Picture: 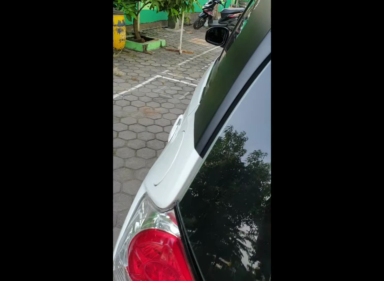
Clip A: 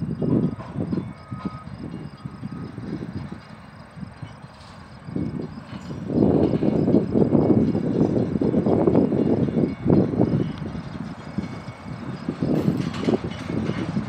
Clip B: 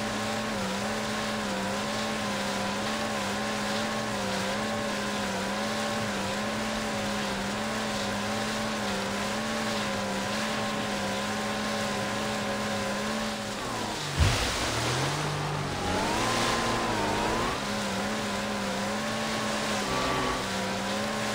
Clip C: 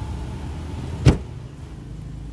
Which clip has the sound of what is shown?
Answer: C